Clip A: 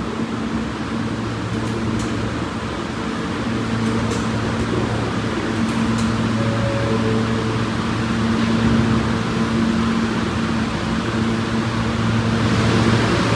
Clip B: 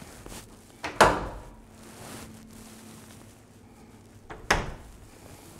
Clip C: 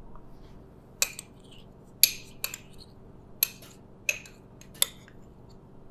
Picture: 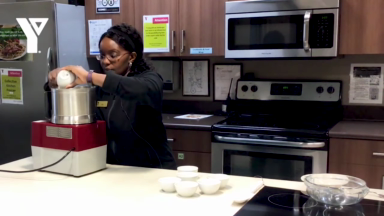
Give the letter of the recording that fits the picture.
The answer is C